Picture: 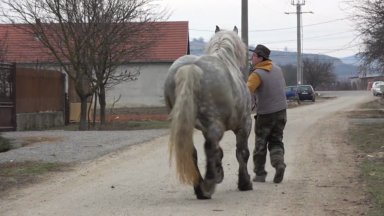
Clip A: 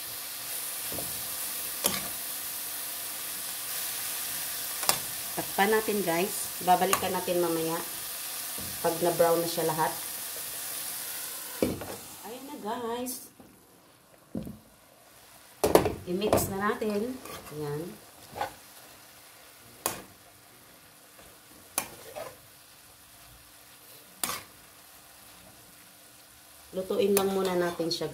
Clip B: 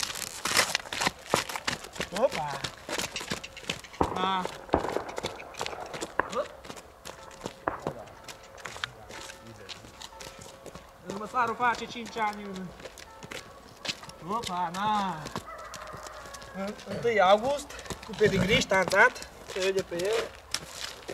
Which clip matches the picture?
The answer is B